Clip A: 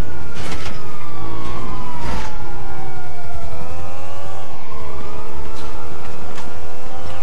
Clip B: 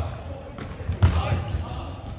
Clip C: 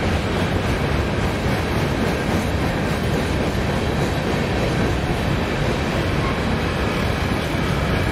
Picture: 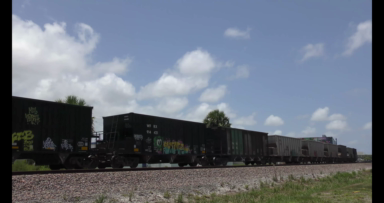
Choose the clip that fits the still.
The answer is C